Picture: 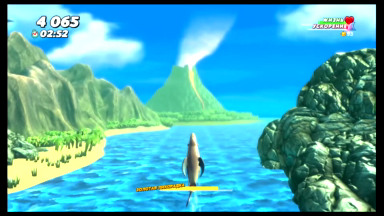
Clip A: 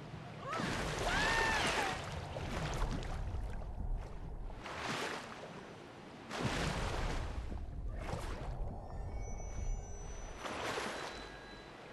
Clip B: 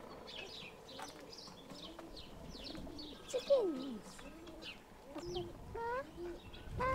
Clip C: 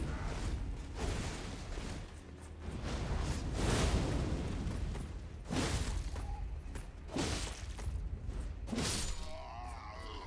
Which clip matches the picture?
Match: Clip A